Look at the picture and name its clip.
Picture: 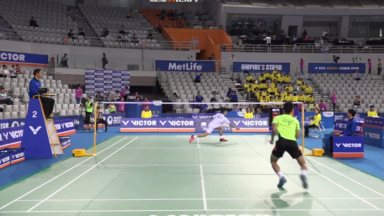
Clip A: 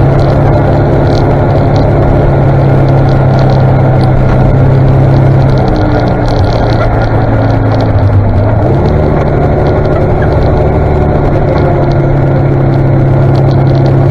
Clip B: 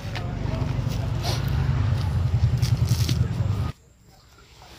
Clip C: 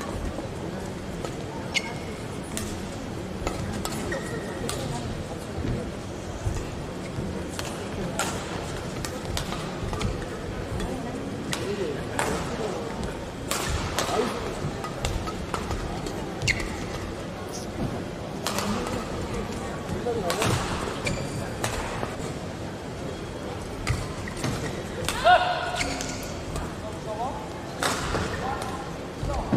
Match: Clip C